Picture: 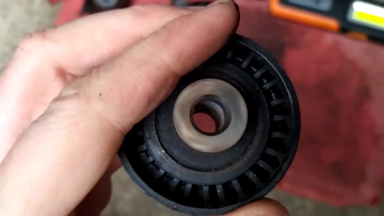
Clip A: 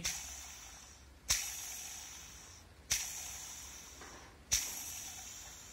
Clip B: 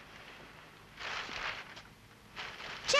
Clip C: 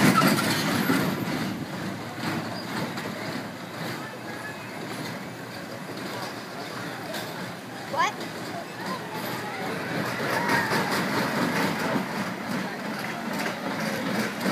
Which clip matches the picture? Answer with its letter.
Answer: A